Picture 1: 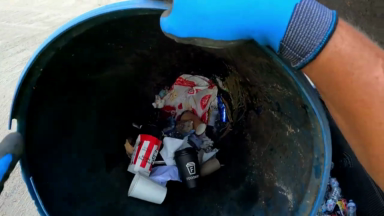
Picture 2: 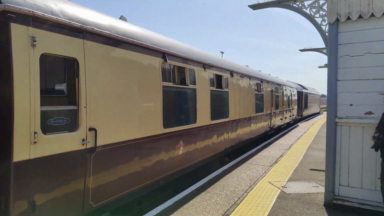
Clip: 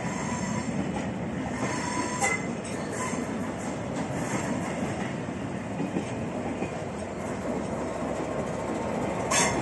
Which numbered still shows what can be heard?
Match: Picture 2